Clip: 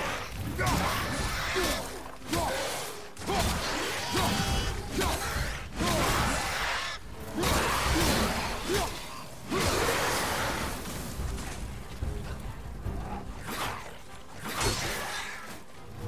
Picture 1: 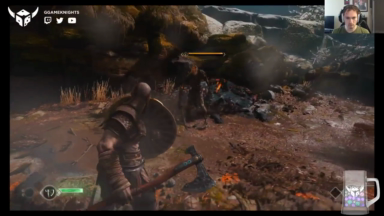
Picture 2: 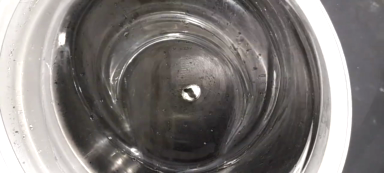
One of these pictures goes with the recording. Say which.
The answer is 1